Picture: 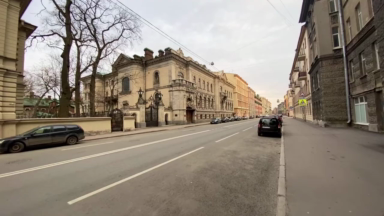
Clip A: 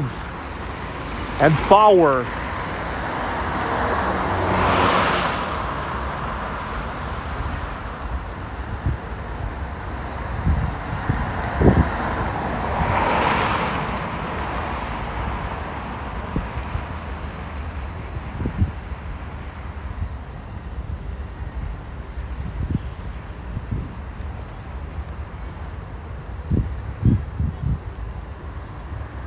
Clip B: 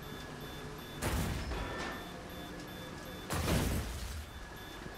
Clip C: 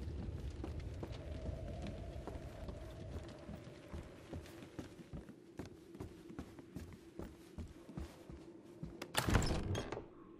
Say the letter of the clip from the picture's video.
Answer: A